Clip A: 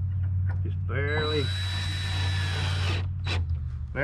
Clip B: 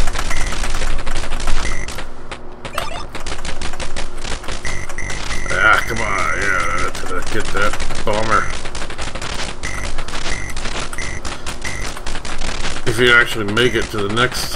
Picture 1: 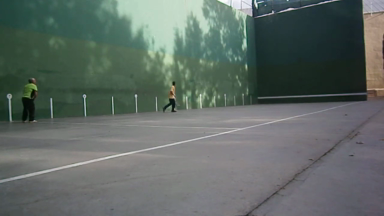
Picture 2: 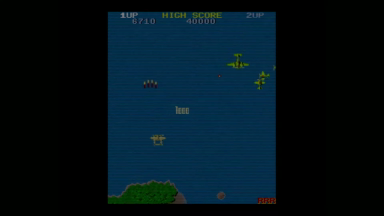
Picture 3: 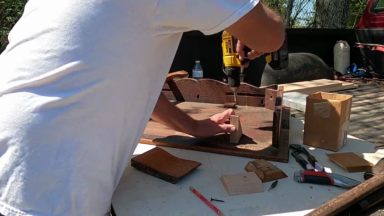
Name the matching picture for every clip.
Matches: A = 3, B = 2